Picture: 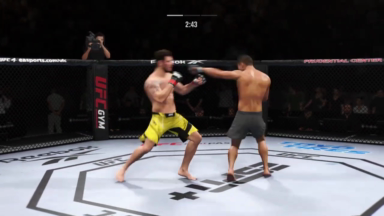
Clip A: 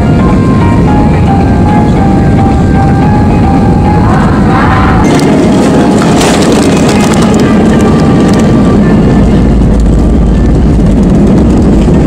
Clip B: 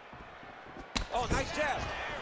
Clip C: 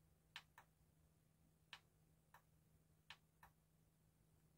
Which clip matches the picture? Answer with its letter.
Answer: B